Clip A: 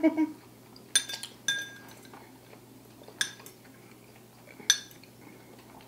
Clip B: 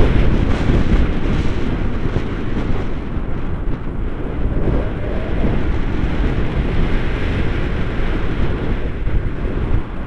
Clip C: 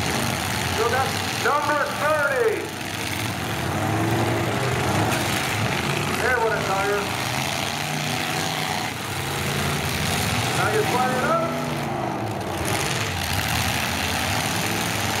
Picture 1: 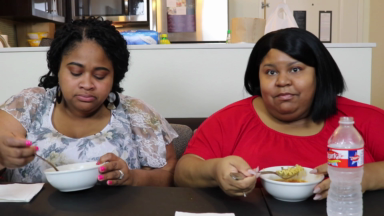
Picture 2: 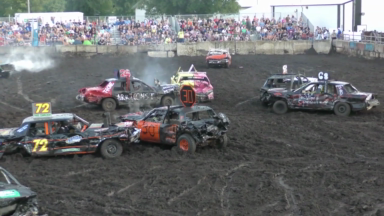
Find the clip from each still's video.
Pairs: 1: A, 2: C